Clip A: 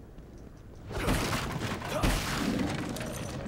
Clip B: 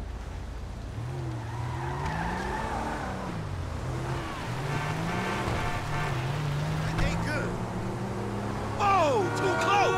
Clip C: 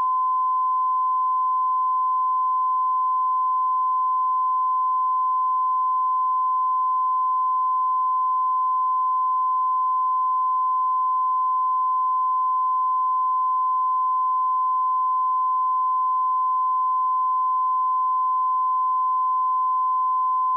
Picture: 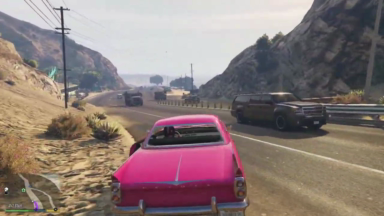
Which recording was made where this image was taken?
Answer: B